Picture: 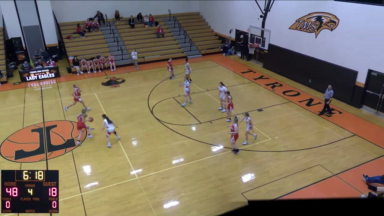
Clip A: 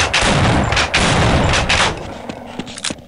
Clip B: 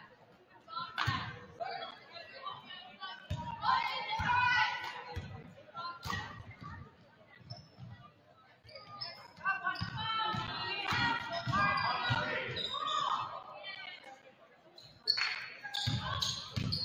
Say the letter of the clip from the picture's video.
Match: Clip B